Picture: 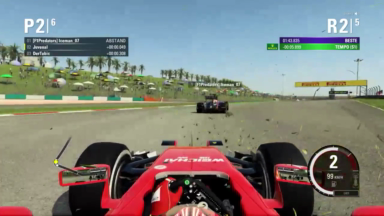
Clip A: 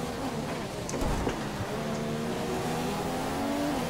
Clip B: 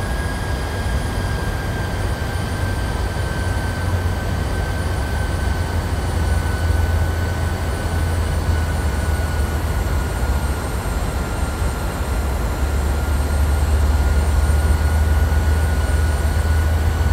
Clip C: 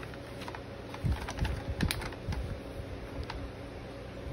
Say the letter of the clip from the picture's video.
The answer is A